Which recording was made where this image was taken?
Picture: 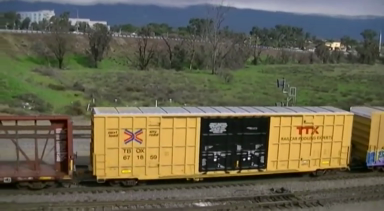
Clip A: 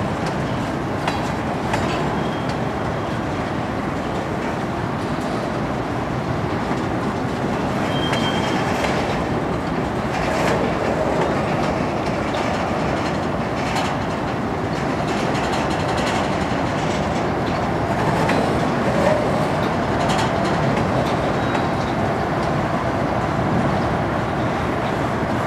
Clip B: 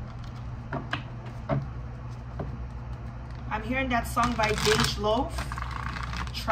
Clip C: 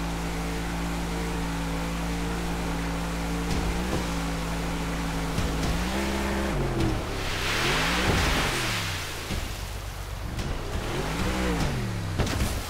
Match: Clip A